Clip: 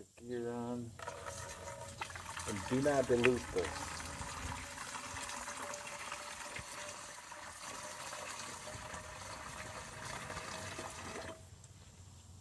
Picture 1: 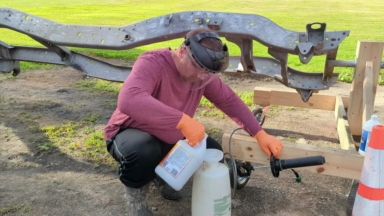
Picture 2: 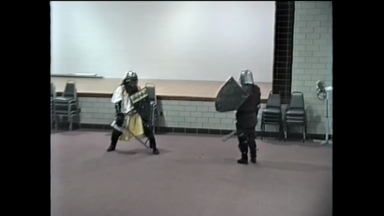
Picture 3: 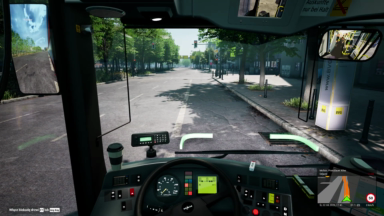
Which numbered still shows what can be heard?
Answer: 1